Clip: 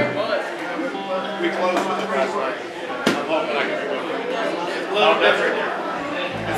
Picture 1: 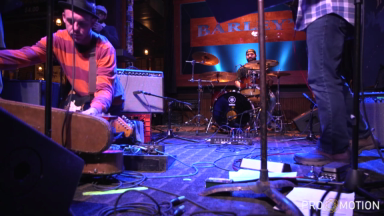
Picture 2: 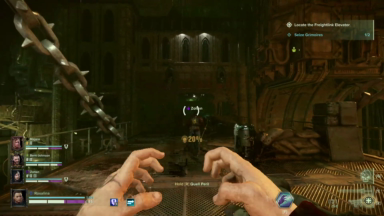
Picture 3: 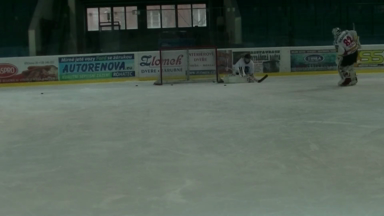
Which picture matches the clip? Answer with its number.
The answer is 1